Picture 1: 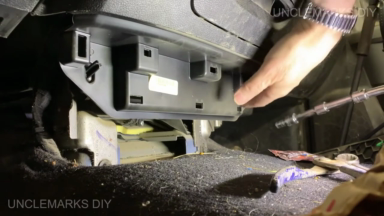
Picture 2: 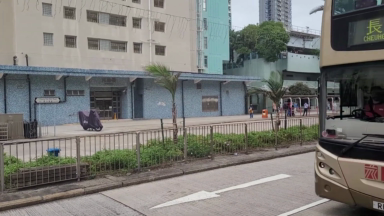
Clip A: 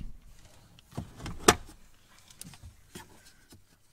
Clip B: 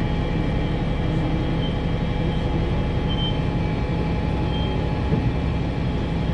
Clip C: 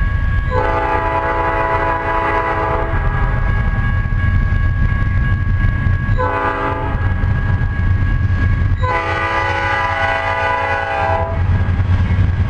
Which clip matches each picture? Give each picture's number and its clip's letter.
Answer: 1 A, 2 B